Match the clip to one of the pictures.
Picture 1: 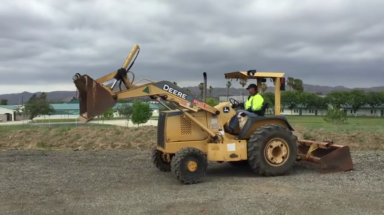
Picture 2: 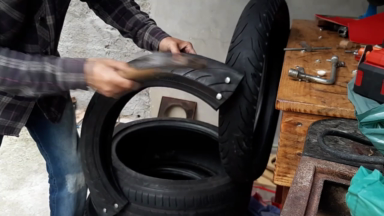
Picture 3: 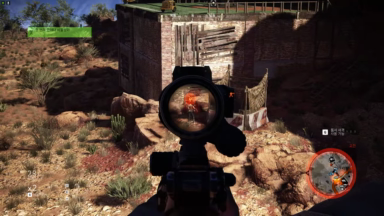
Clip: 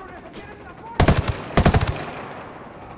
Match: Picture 3